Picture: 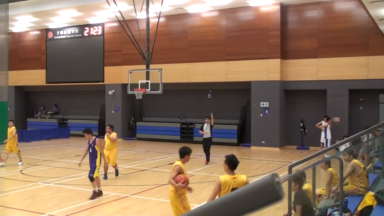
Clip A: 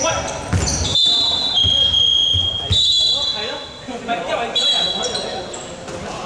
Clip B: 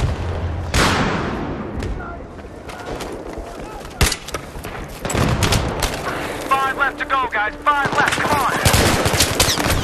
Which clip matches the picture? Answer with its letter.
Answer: A